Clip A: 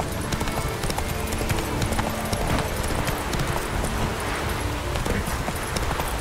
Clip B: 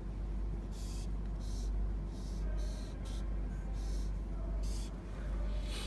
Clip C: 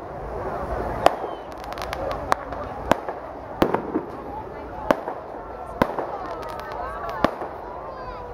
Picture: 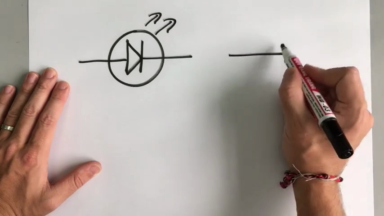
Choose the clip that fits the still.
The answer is B